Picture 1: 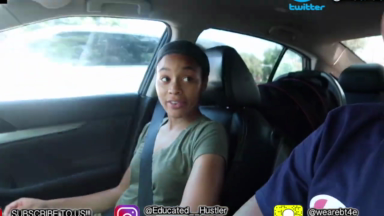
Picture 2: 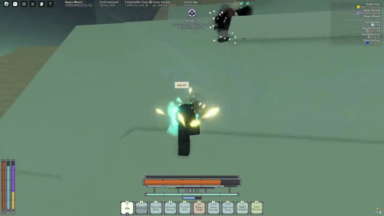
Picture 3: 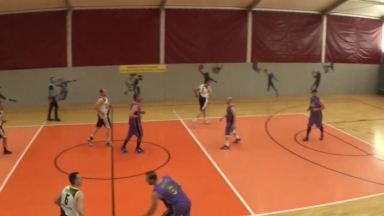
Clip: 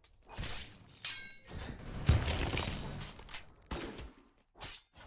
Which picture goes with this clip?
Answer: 2